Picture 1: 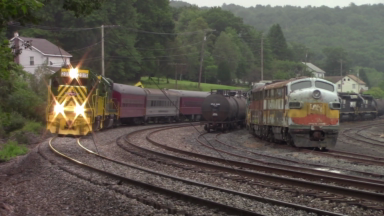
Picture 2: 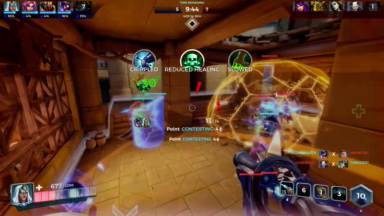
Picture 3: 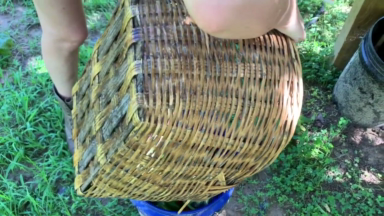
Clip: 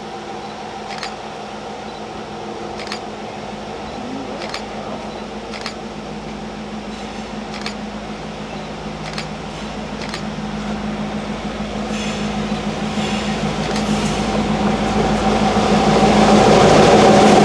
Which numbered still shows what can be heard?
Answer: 1